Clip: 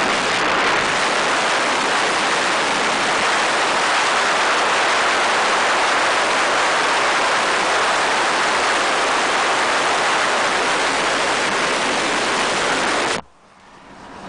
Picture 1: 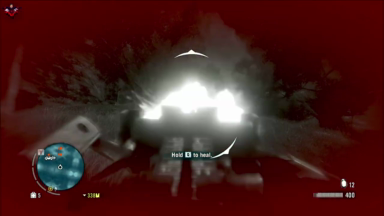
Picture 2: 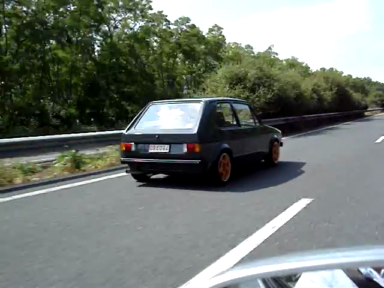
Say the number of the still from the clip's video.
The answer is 2